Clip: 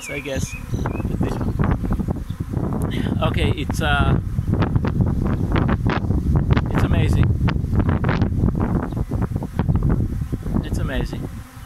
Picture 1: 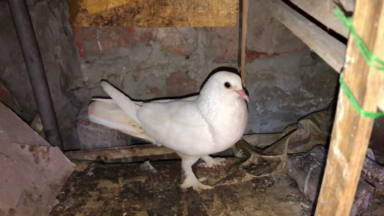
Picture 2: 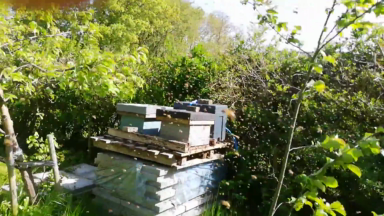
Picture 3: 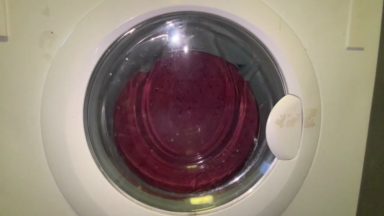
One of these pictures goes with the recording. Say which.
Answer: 2